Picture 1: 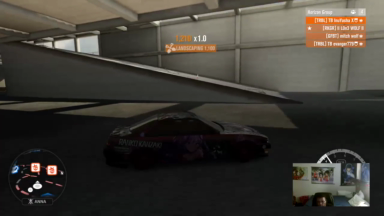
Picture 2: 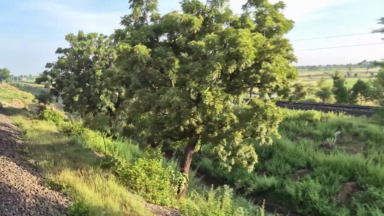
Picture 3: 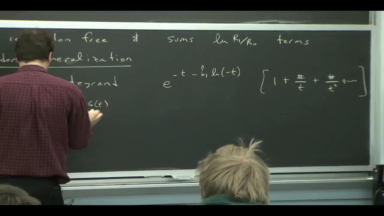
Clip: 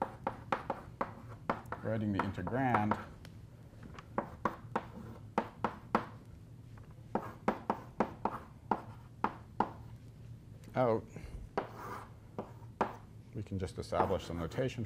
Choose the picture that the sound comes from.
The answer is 3